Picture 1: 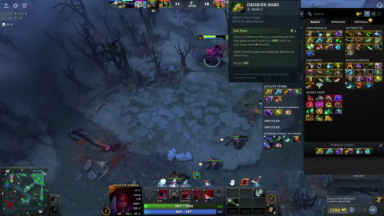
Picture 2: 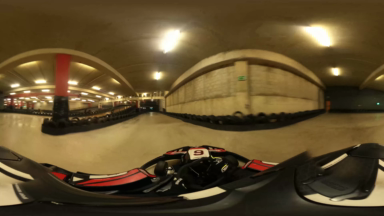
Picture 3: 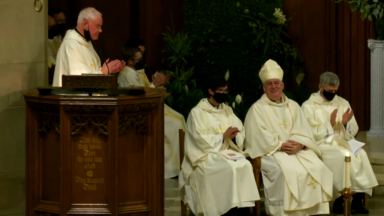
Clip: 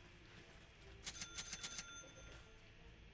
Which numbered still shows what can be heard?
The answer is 1